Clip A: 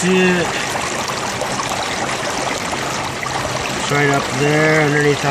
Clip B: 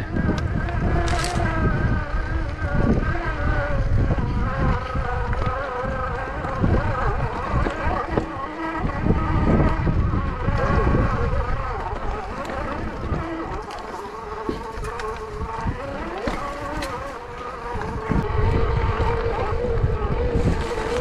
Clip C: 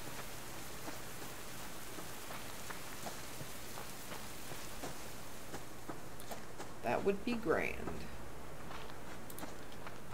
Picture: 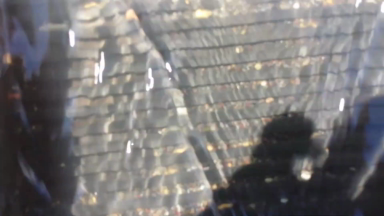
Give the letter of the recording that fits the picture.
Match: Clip A